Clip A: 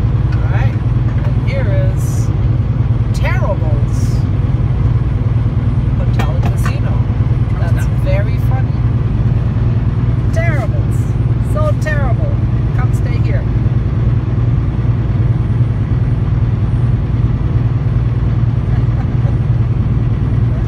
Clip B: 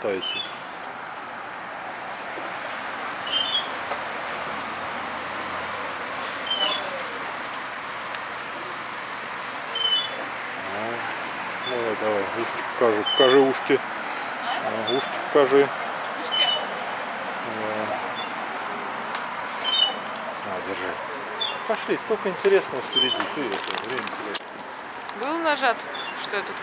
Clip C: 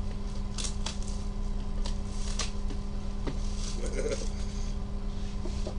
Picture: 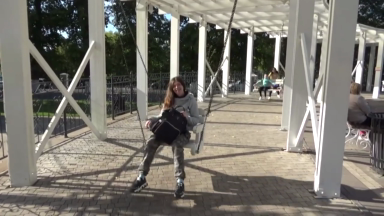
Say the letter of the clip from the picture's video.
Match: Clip B